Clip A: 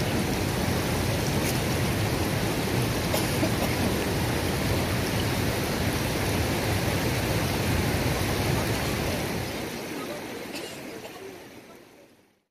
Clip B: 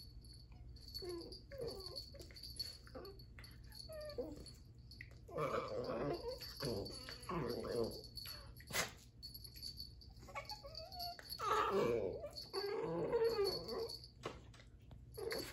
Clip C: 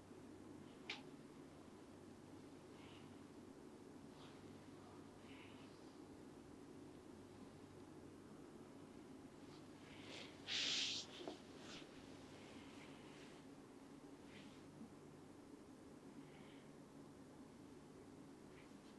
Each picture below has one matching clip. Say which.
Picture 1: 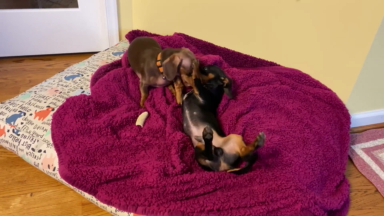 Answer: B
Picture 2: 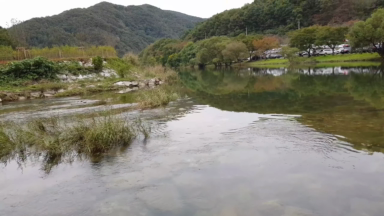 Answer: A